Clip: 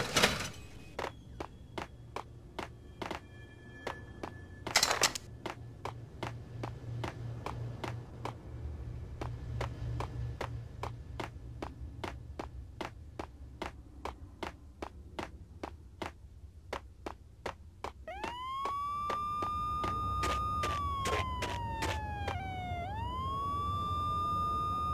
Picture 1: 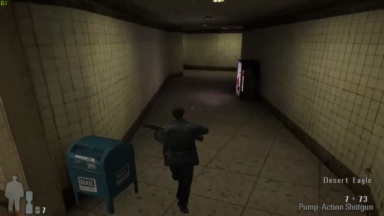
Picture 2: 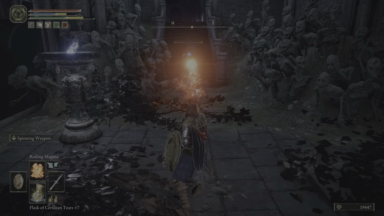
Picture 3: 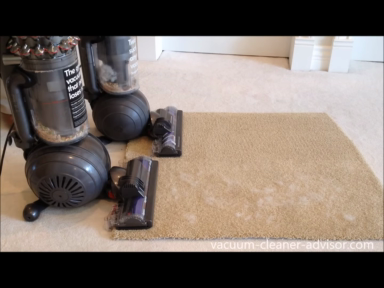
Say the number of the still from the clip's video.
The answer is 1